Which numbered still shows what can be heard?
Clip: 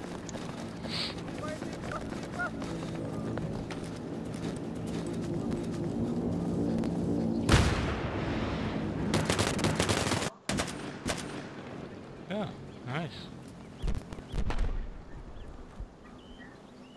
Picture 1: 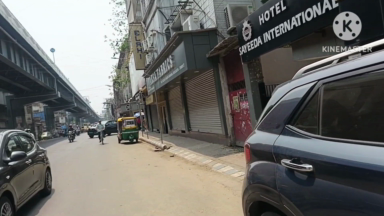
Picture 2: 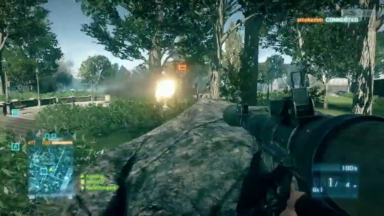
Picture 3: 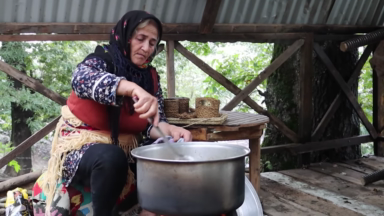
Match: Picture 2